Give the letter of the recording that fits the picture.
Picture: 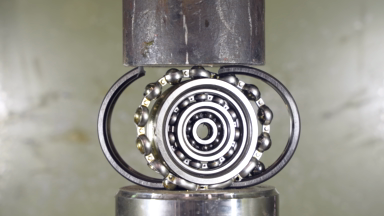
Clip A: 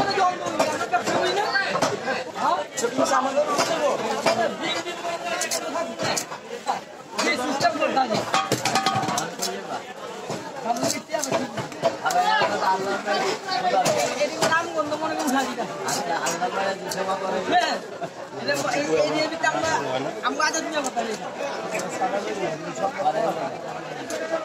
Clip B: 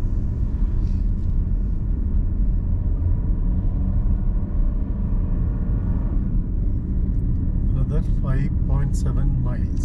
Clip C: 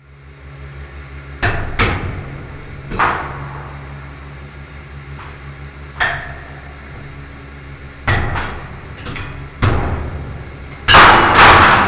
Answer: C